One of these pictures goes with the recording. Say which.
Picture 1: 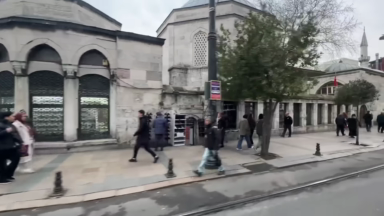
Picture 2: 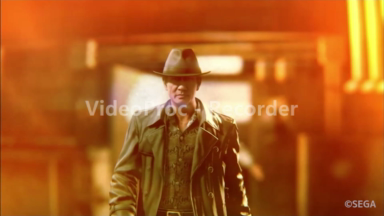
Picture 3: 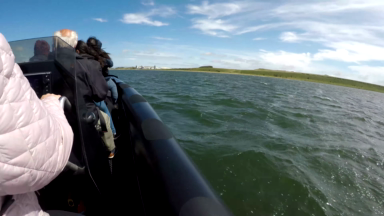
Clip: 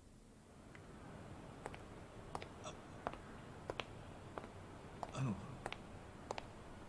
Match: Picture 2